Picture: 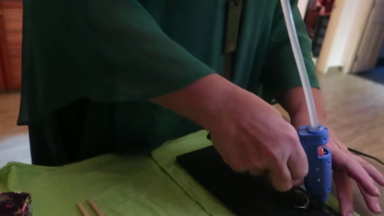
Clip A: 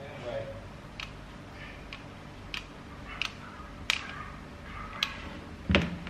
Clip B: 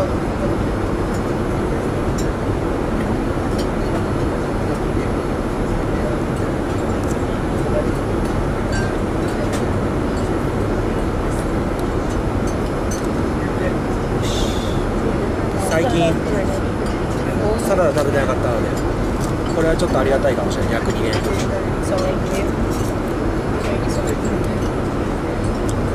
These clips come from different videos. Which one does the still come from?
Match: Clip A